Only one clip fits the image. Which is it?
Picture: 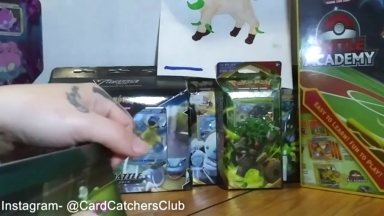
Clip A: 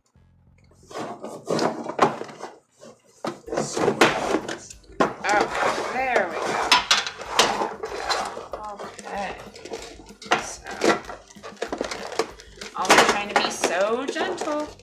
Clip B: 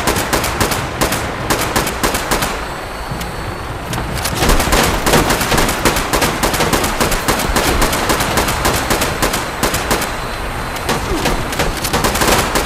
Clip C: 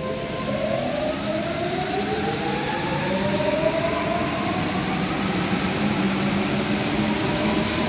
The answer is A